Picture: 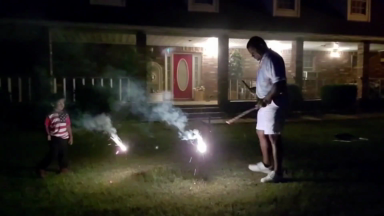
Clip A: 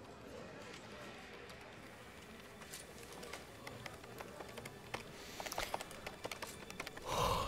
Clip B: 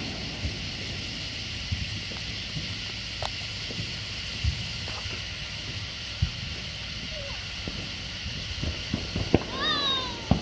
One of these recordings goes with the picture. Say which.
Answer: B